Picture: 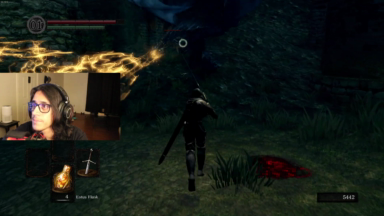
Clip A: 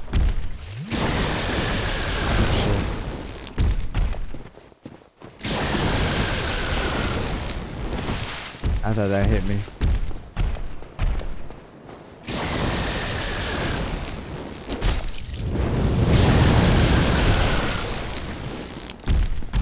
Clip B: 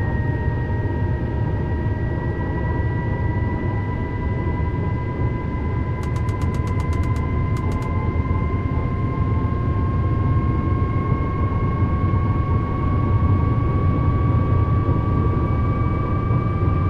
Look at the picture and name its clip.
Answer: A